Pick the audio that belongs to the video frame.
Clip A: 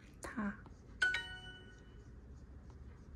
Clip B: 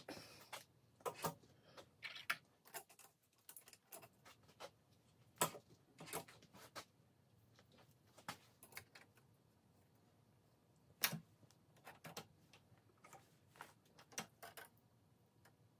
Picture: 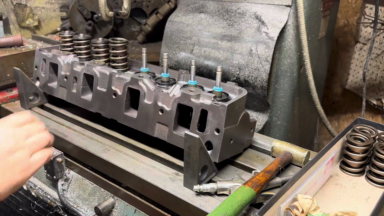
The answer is B